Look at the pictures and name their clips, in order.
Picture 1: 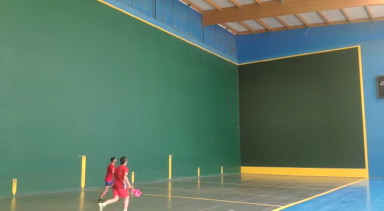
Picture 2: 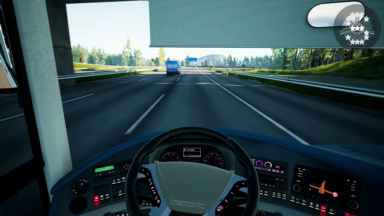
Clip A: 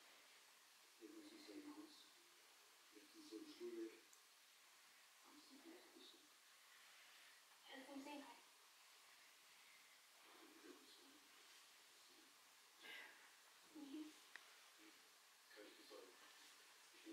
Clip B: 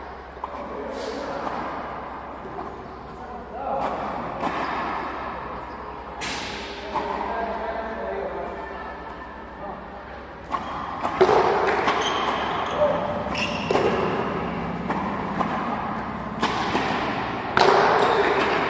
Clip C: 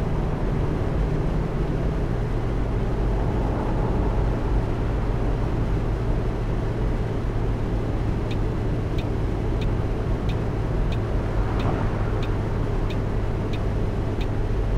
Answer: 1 B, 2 C